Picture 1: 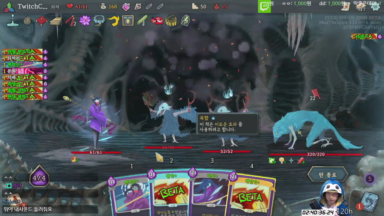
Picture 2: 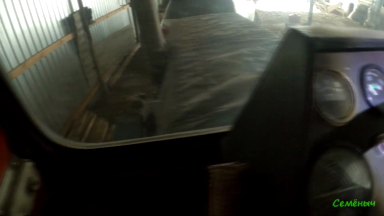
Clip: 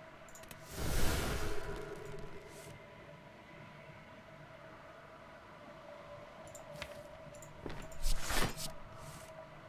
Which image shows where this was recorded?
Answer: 1